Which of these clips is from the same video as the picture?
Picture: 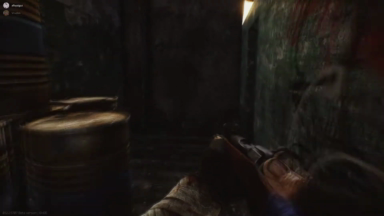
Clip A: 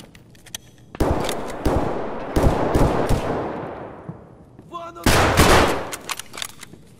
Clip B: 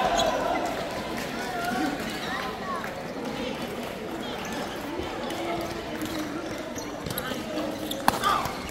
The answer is A